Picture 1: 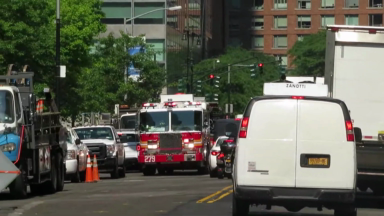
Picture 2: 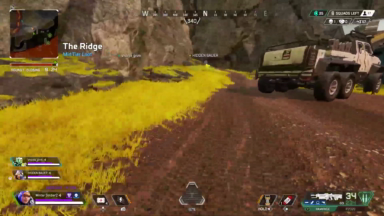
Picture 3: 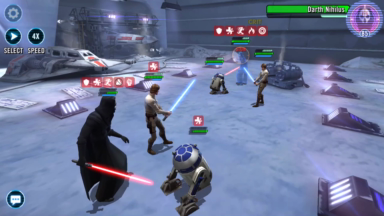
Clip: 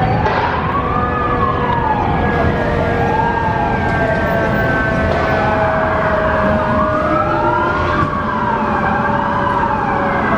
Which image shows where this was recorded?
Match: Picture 1